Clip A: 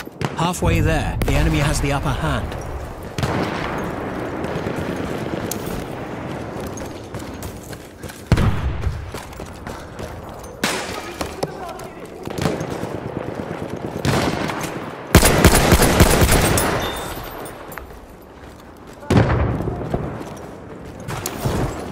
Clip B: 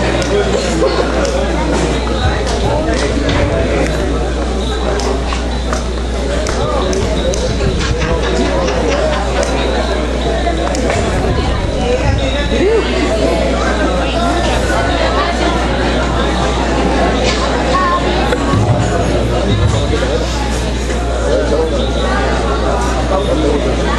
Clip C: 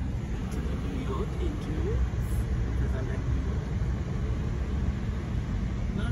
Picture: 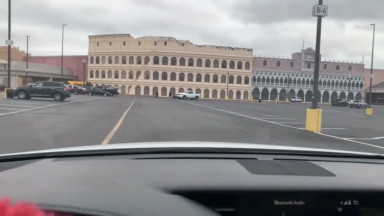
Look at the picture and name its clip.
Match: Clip C